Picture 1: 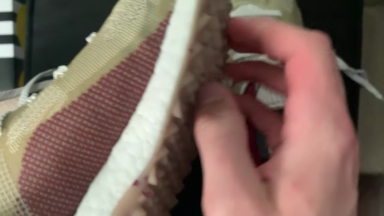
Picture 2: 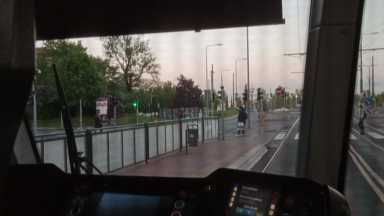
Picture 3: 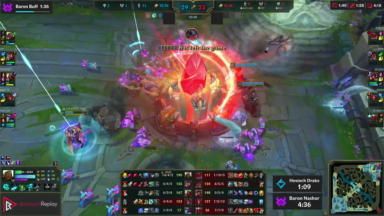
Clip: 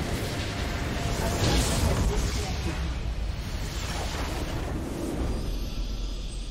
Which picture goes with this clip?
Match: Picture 3